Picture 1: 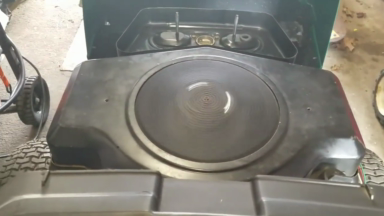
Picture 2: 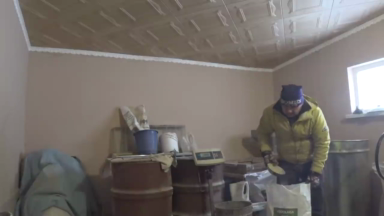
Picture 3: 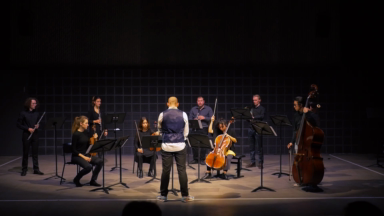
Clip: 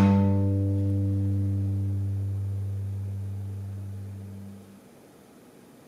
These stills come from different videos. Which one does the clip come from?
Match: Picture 3